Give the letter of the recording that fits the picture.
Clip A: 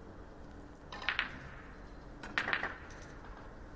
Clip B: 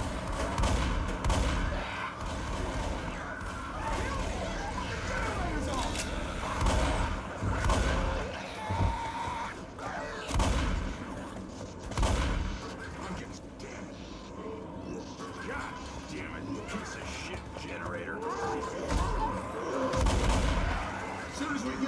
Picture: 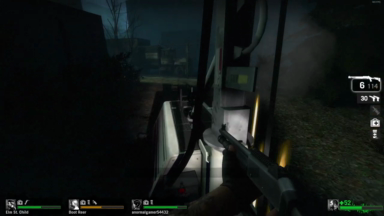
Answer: B